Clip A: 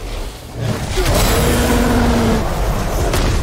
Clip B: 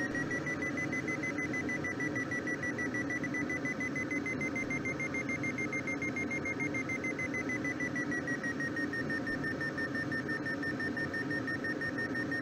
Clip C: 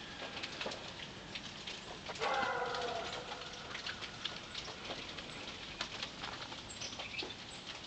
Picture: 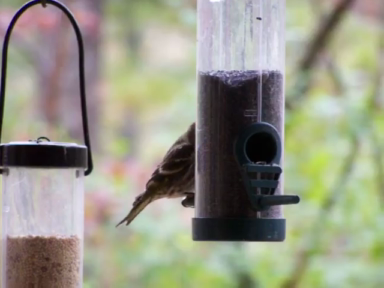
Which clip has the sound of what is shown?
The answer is C